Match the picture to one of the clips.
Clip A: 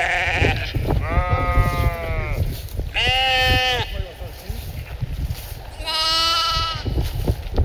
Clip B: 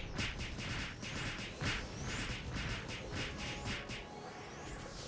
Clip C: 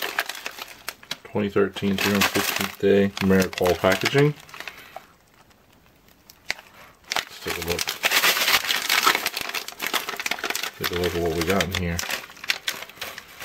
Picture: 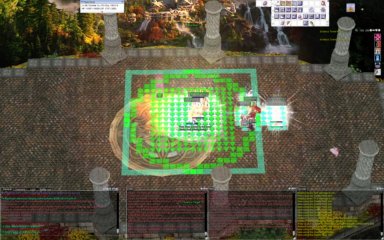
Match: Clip B